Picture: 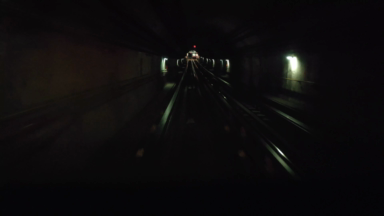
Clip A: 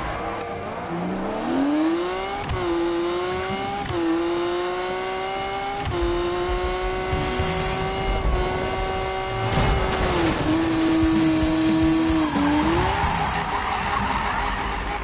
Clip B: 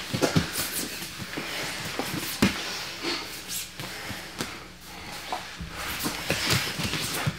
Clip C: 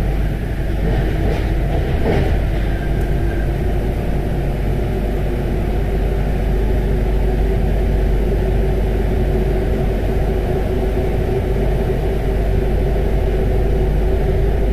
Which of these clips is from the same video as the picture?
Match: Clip C